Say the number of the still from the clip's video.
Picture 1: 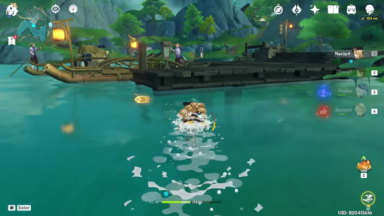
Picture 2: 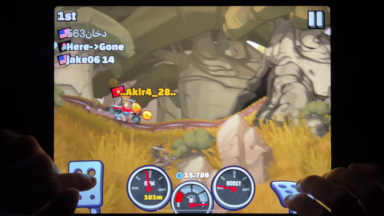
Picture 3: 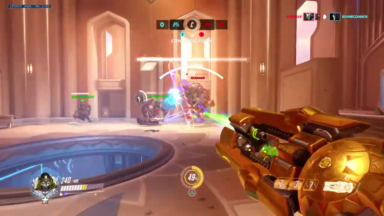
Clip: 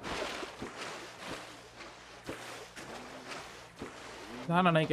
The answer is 1